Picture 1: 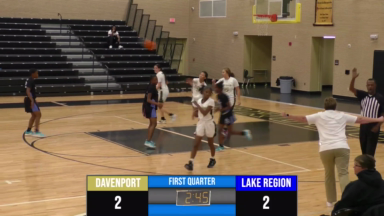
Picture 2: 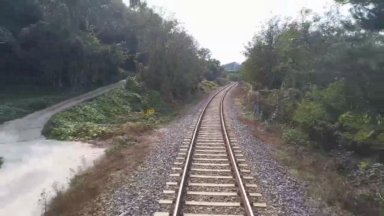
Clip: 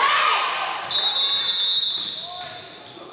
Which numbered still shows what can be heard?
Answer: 1